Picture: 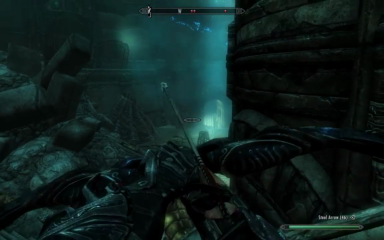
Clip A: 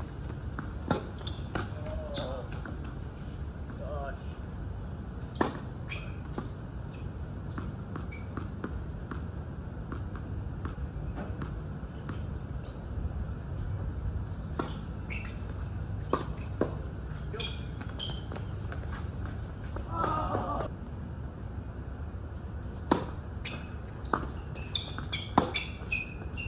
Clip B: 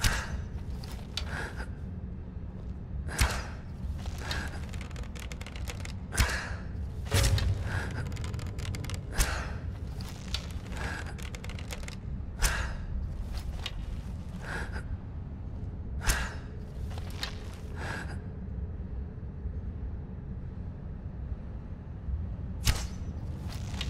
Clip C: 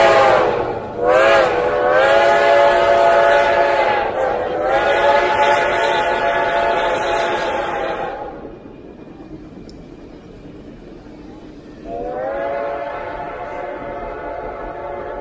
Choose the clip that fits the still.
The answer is B